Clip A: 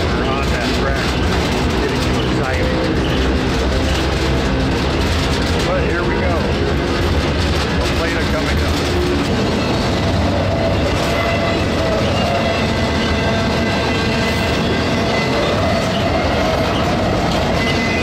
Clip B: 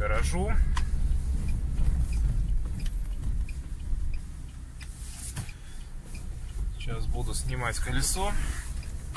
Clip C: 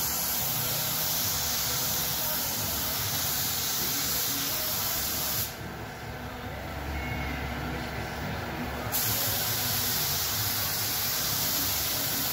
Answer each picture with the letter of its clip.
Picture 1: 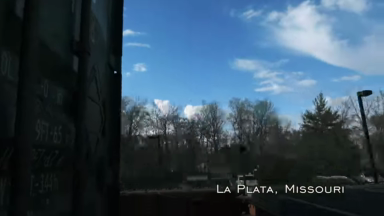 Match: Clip A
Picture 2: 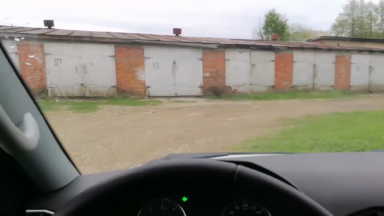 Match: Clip B